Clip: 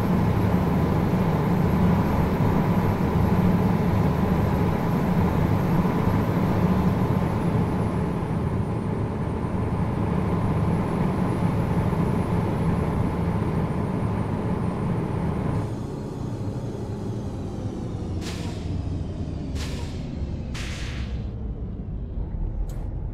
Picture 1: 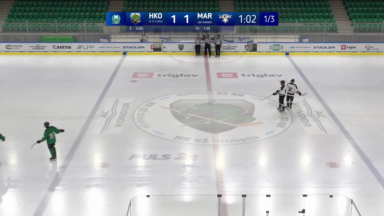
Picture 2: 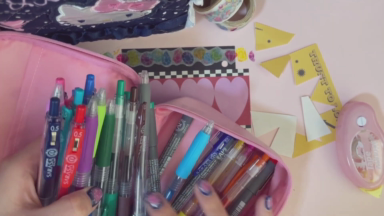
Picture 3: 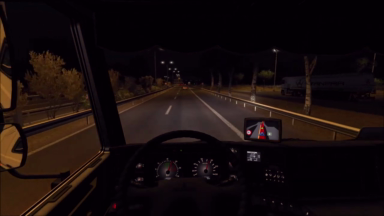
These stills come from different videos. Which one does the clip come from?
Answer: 3